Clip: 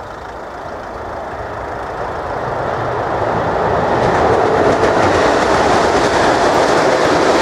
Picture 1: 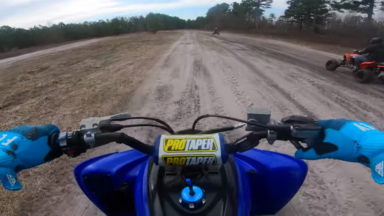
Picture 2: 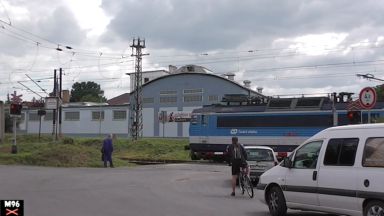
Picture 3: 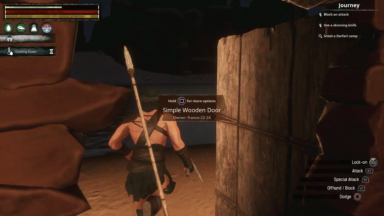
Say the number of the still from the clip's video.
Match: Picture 2